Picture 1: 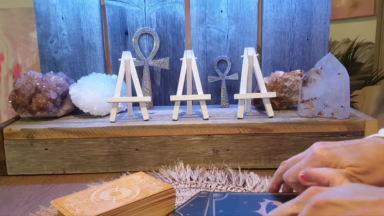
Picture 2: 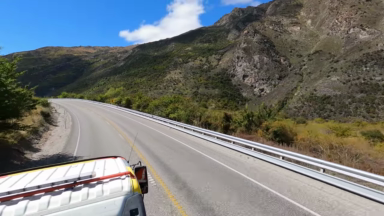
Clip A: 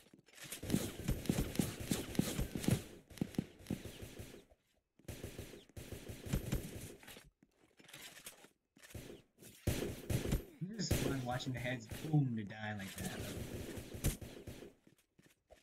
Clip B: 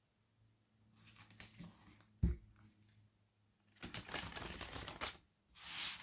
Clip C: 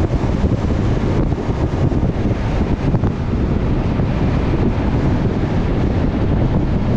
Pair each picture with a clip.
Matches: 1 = B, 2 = C